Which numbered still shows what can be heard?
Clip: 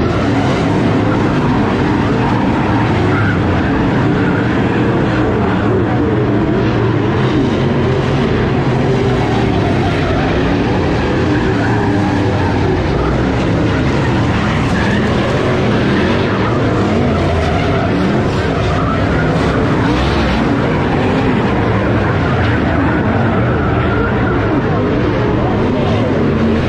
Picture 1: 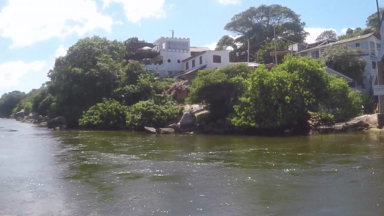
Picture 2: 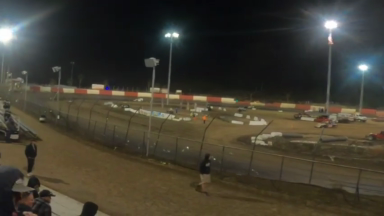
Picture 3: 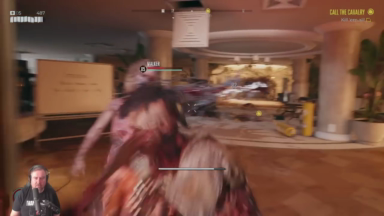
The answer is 2